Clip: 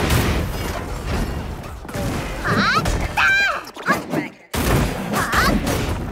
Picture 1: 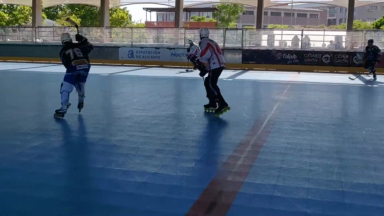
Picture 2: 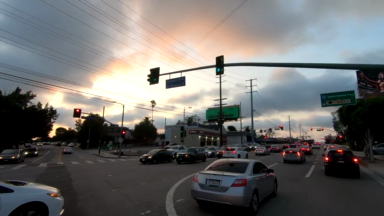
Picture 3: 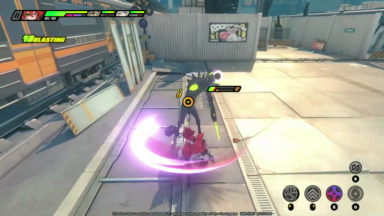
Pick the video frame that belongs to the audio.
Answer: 3